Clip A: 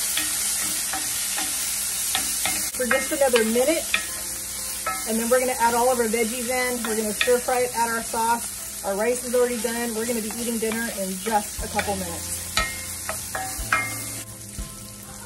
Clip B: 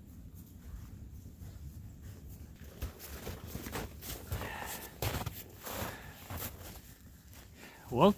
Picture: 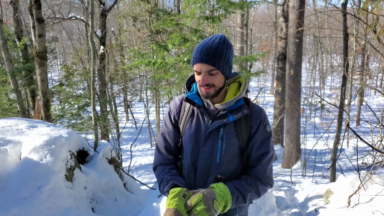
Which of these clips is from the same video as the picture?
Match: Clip B